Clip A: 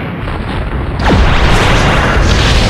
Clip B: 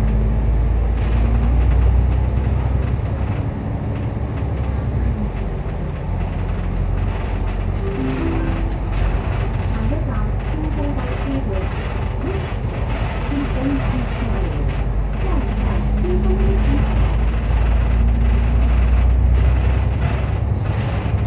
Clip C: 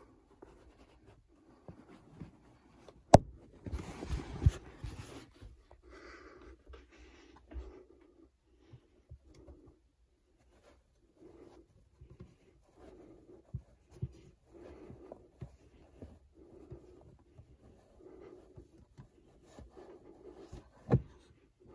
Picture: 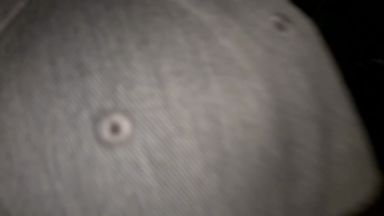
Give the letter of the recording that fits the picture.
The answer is C